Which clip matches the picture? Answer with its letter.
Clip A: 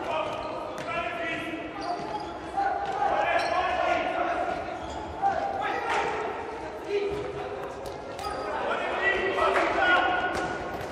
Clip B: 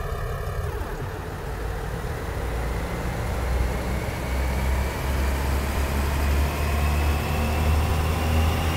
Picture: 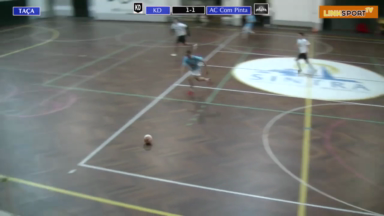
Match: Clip A